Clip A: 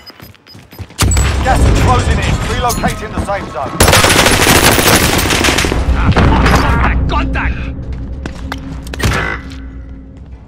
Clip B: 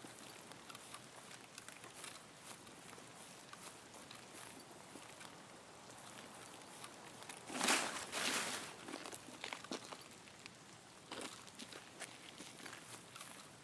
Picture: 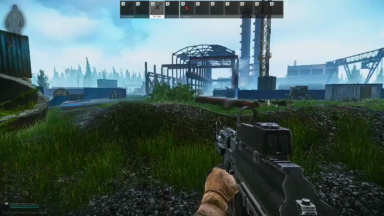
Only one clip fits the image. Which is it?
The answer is B